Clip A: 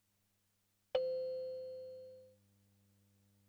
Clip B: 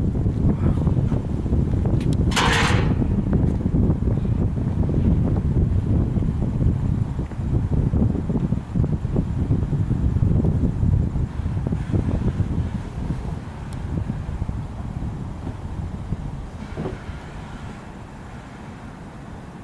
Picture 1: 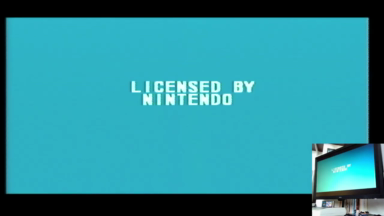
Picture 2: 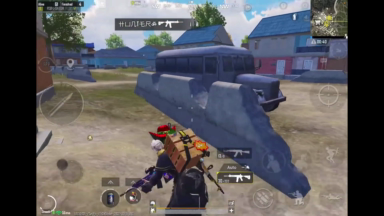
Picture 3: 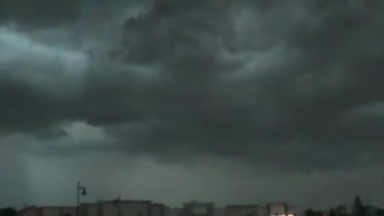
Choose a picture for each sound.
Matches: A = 1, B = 3